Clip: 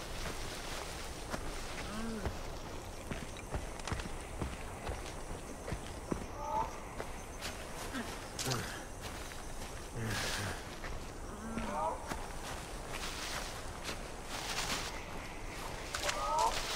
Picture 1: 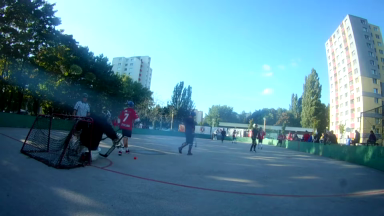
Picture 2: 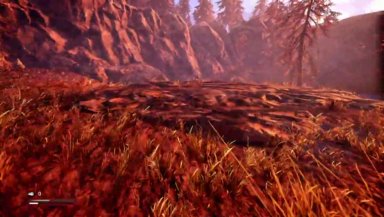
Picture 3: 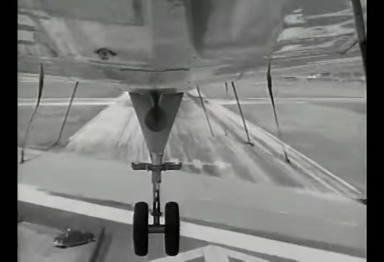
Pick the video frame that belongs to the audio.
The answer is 2